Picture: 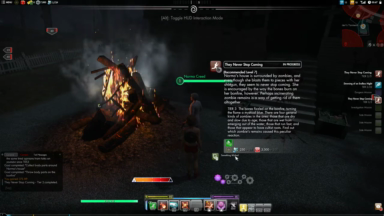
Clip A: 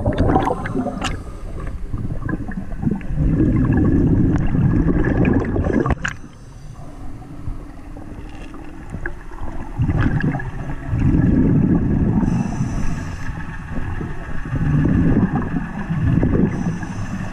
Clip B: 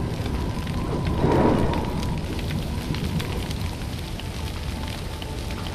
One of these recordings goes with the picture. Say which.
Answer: B